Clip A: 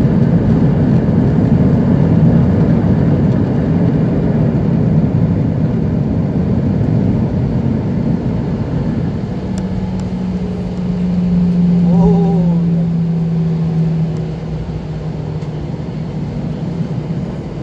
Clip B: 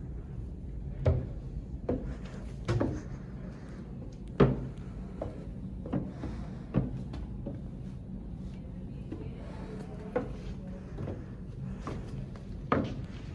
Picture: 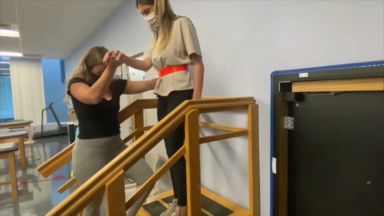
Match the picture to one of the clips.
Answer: B